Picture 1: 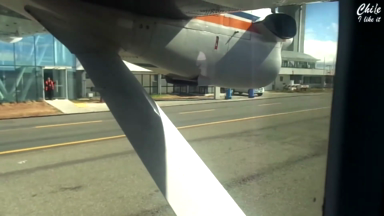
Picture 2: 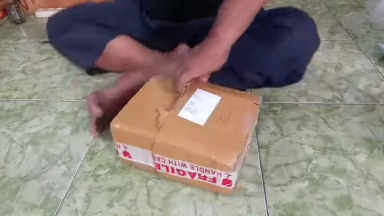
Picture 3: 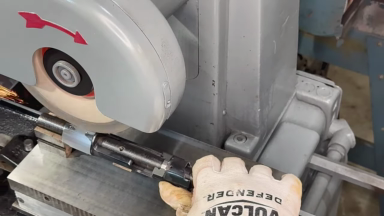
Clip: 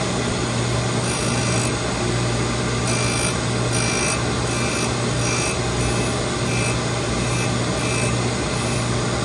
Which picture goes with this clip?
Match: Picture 3